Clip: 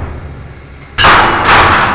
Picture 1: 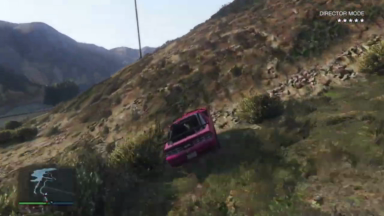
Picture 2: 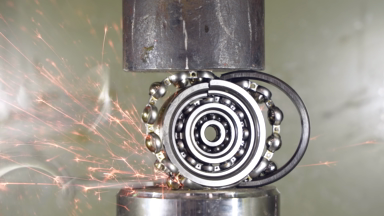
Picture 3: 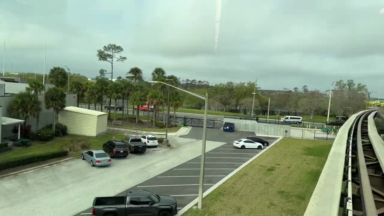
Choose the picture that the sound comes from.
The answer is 2